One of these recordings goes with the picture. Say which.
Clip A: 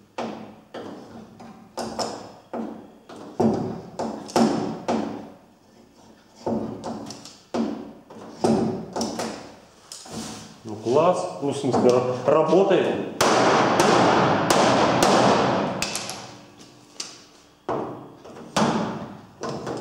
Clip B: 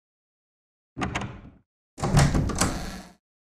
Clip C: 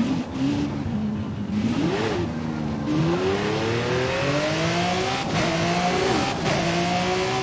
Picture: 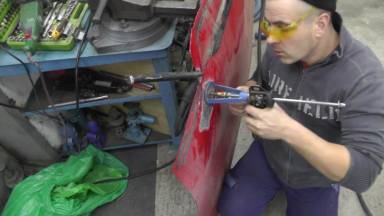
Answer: A